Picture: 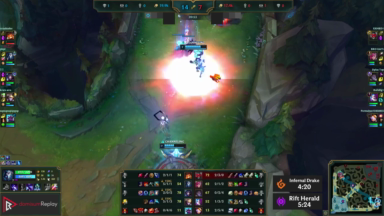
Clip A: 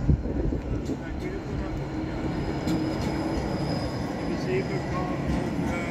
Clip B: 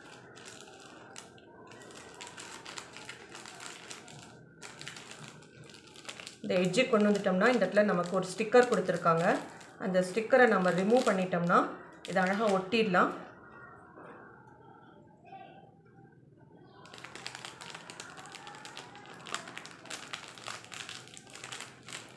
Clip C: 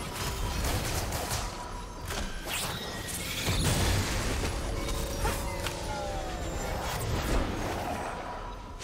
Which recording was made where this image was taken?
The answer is C